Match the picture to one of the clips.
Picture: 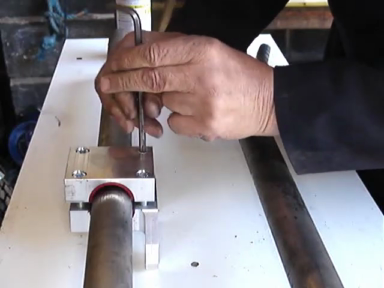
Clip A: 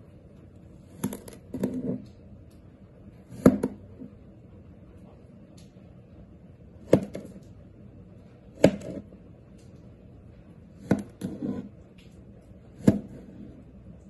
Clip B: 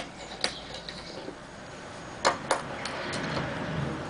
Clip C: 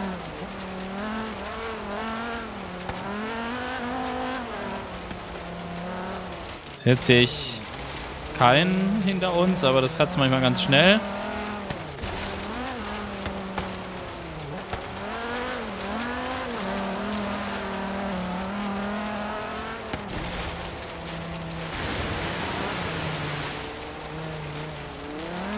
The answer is B